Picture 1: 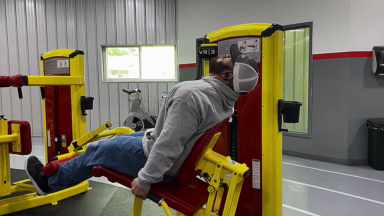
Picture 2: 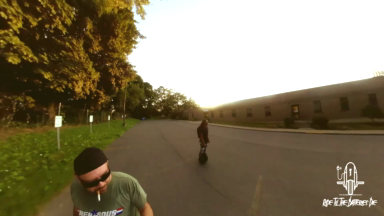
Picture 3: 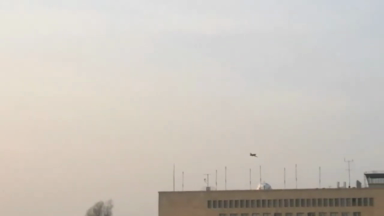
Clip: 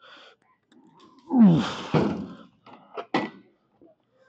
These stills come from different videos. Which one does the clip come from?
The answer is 1